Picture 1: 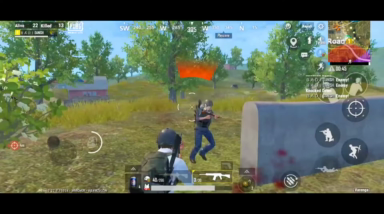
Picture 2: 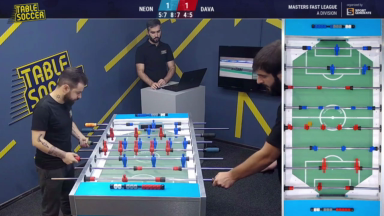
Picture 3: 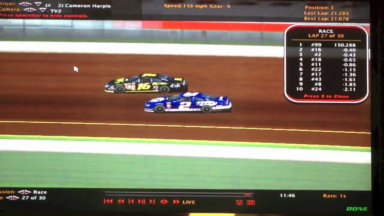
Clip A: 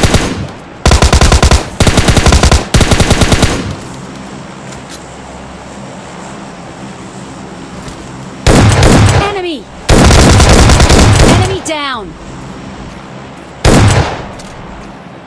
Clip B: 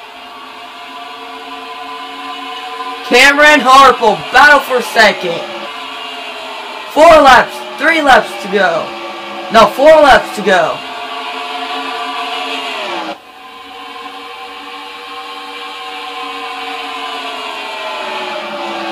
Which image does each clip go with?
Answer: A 1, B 3